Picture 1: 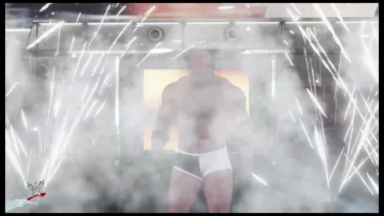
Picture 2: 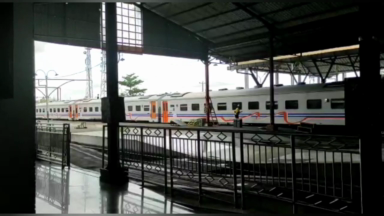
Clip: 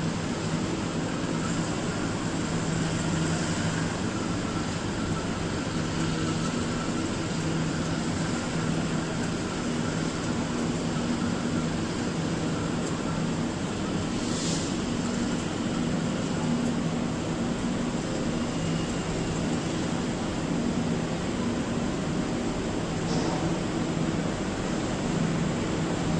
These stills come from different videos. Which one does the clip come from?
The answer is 2